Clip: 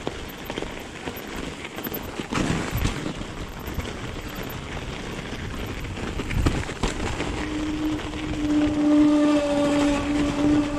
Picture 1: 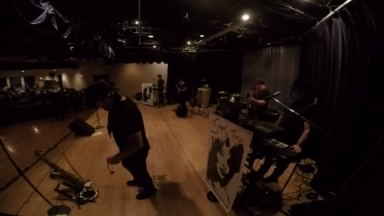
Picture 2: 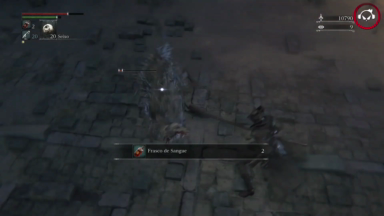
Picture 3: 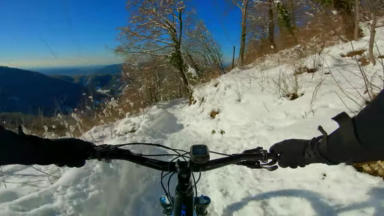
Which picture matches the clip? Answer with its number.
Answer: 3